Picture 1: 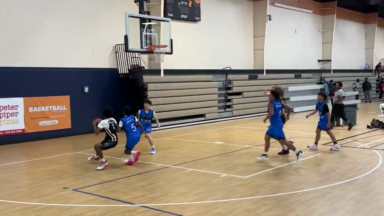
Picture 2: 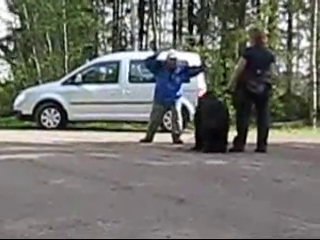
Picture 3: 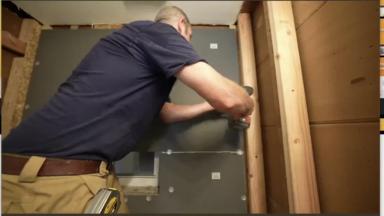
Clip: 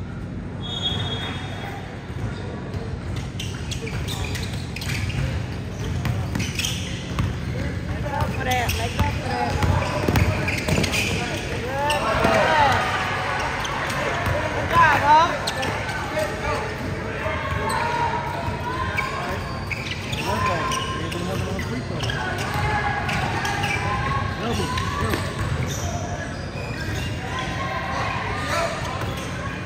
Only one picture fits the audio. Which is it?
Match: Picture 1